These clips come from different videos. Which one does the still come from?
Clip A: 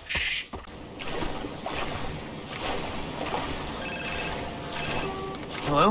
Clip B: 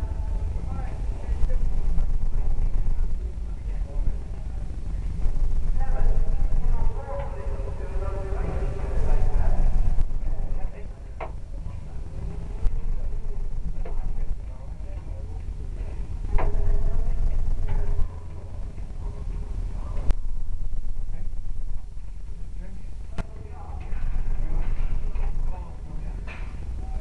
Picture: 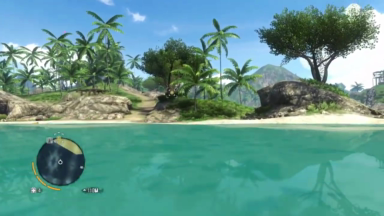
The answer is A